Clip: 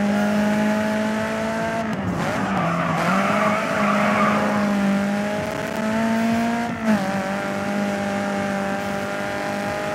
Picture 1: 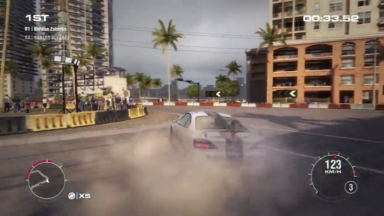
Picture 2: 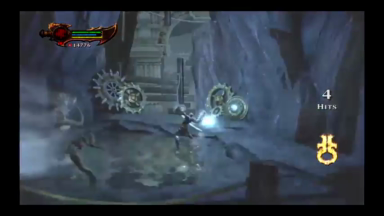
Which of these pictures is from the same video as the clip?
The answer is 1